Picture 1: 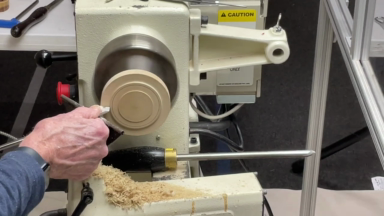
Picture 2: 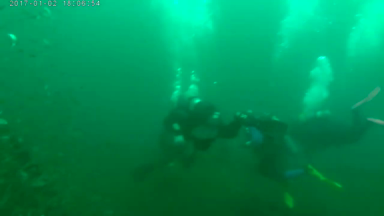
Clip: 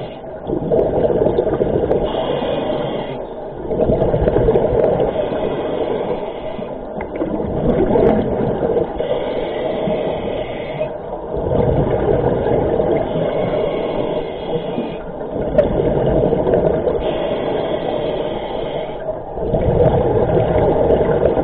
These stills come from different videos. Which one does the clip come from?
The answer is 2